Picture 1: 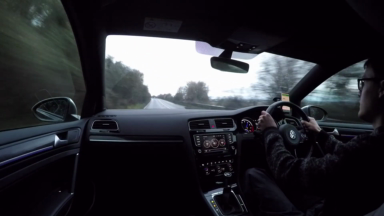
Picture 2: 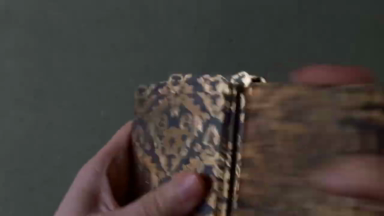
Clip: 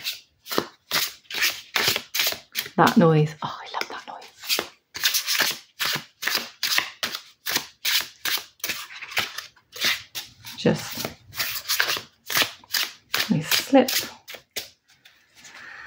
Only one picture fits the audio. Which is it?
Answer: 2